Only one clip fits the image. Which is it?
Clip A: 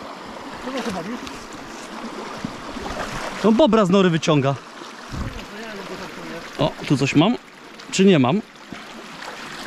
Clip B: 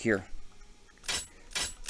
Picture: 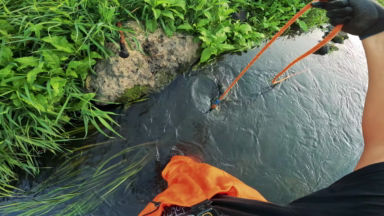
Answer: A